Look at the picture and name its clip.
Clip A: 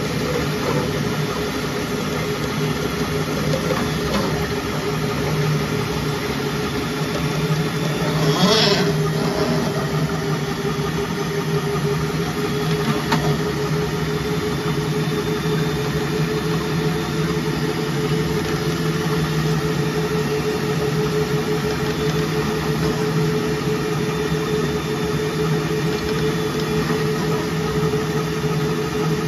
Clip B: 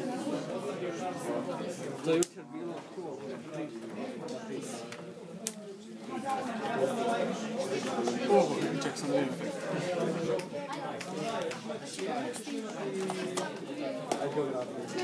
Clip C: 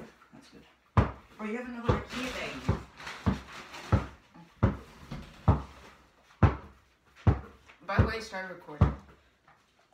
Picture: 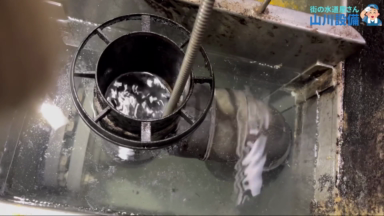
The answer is A